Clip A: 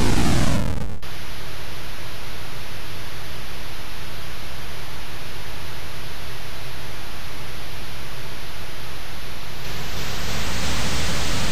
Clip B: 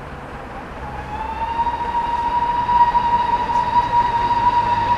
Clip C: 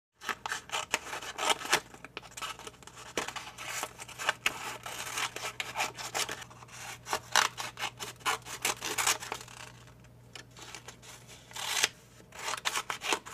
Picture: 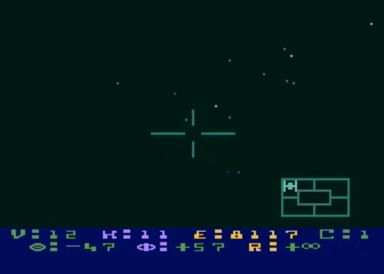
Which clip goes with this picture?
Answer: A